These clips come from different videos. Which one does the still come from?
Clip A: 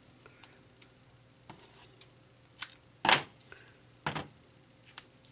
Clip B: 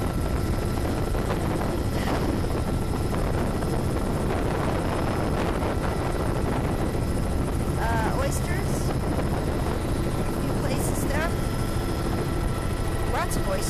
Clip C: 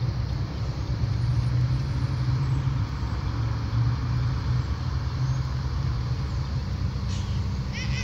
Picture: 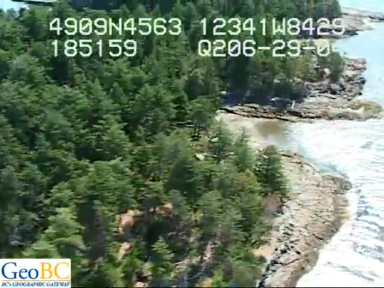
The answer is B